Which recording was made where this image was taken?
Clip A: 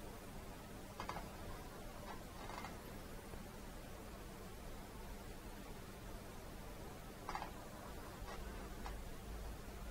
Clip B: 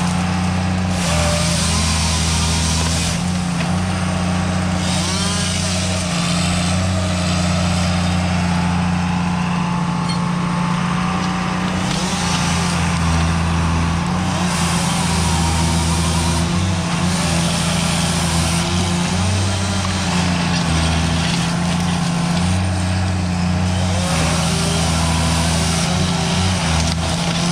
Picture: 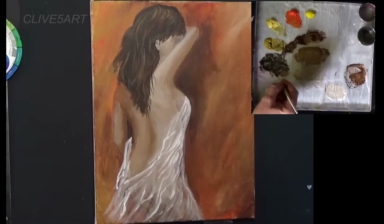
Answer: A